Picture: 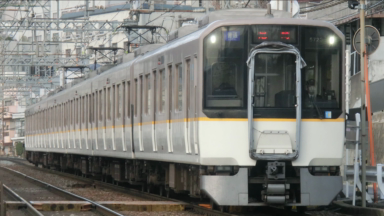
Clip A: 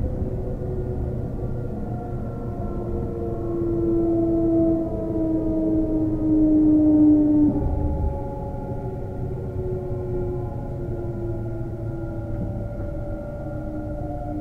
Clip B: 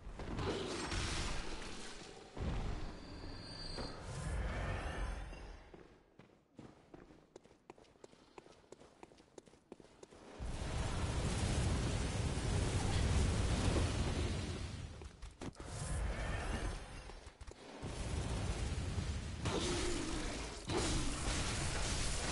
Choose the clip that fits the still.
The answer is A